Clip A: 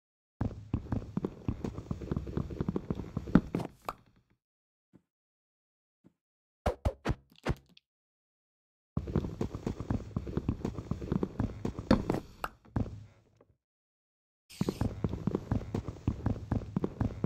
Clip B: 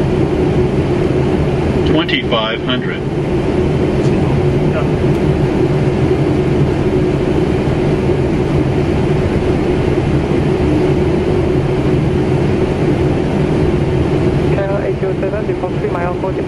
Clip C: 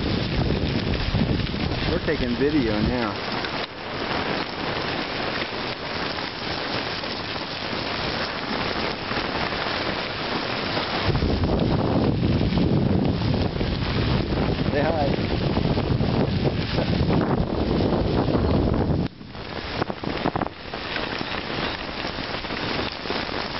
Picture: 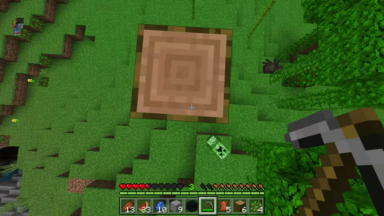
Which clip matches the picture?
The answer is A